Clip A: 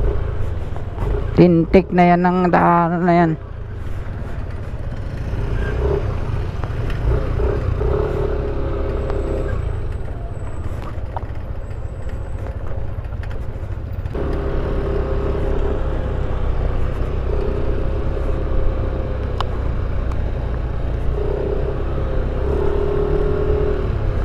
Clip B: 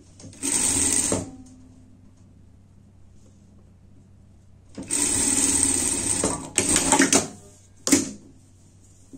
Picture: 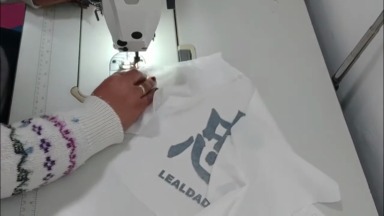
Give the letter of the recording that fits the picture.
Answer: B